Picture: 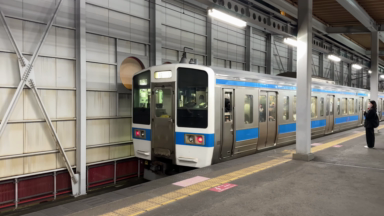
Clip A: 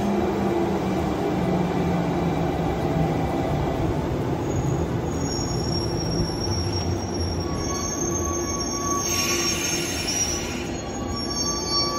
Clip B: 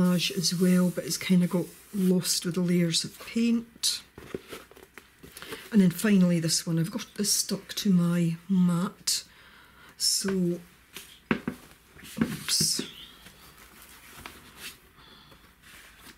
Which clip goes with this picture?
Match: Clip A